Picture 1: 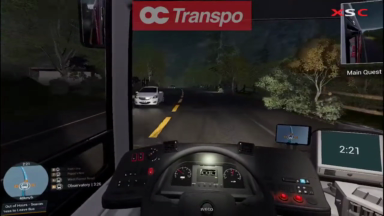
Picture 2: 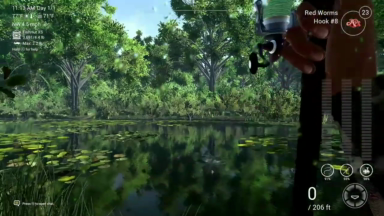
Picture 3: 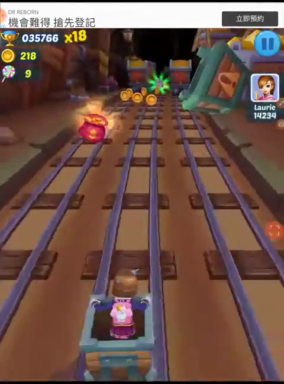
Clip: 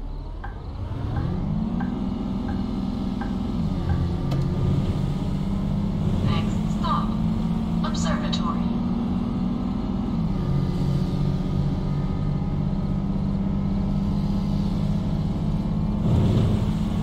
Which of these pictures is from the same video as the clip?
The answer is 1